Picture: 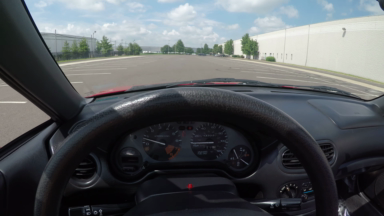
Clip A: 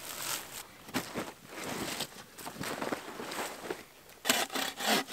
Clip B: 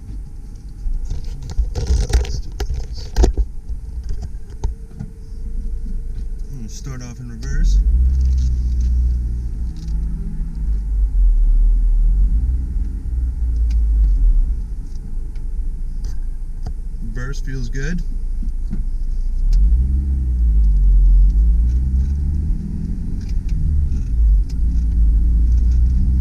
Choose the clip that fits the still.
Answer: B